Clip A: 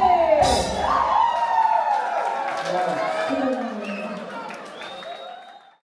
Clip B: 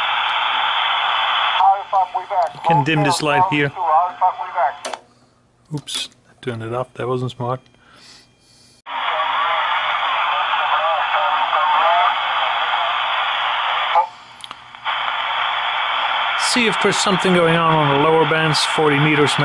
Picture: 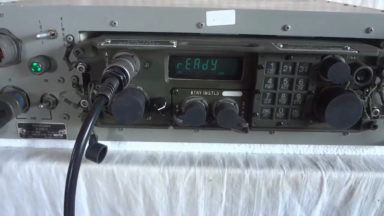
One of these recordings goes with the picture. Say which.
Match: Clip B